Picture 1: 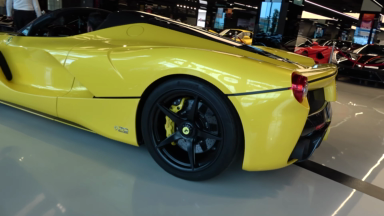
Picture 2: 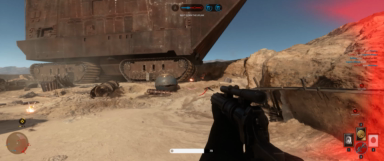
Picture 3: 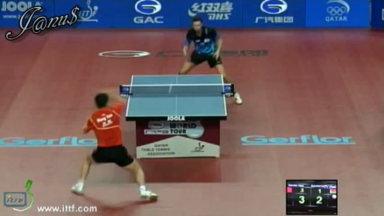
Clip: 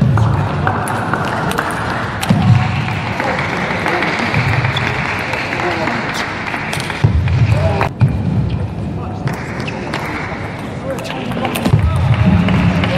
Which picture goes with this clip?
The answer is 3